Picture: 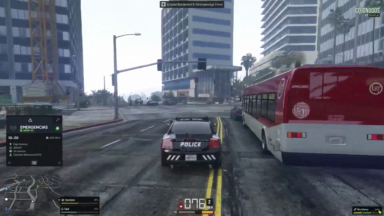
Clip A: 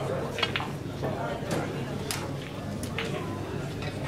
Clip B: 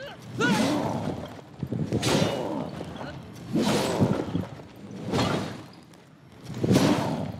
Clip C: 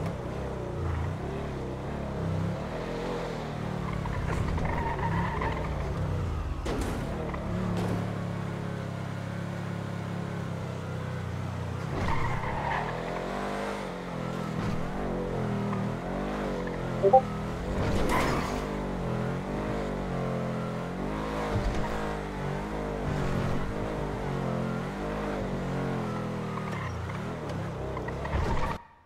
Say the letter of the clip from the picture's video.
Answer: C